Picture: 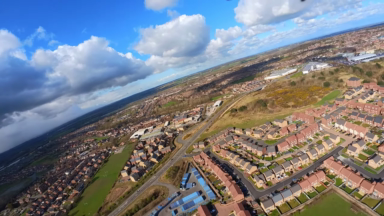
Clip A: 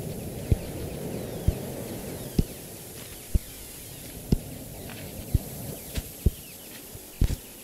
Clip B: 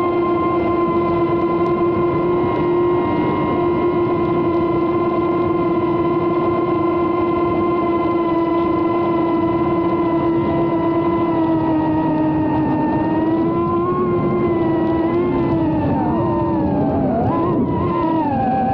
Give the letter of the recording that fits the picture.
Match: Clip B